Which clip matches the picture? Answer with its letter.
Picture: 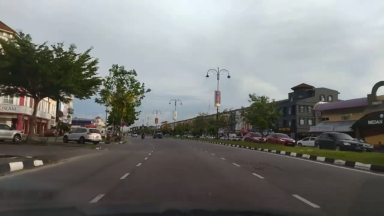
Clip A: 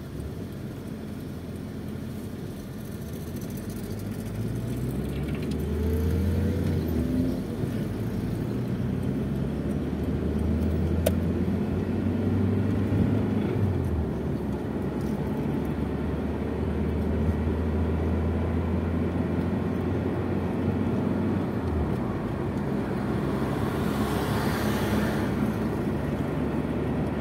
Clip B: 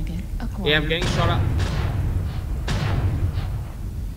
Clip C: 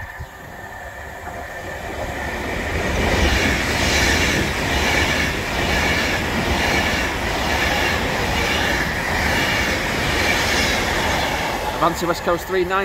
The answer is A